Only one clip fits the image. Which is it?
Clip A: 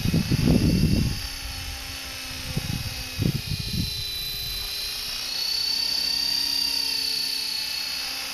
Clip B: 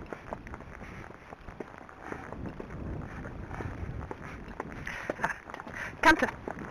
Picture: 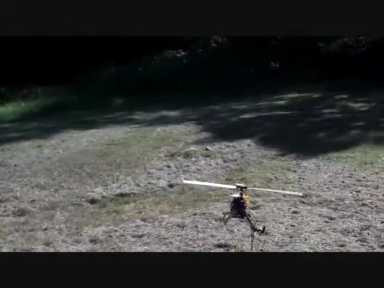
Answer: A